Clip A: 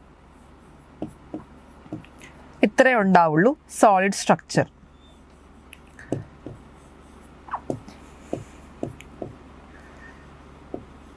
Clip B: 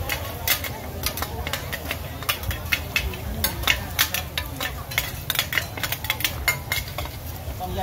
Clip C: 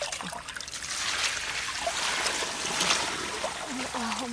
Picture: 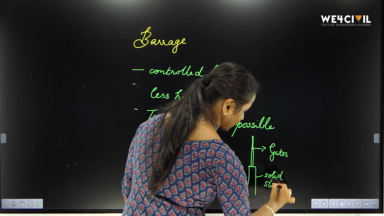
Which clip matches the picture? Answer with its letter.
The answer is A